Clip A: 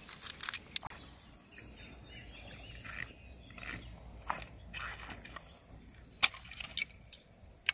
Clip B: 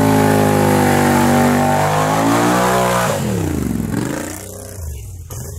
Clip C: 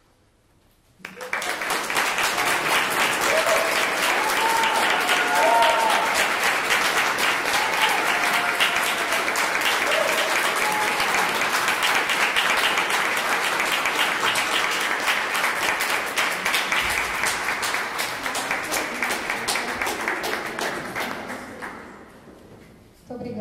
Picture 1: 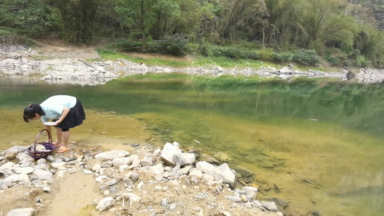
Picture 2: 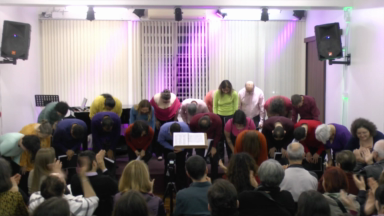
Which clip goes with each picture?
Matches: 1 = A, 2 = C